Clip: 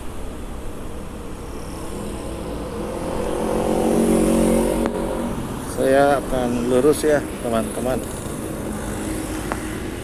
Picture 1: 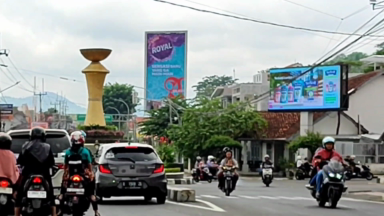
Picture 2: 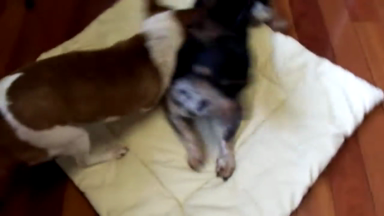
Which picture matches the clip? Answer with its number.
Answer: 1